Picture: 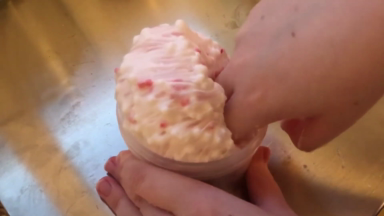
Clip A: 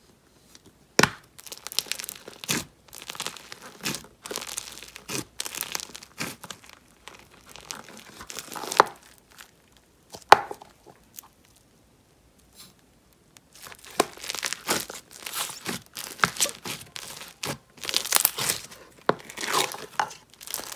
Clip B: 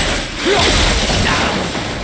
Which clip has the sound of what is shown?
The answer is A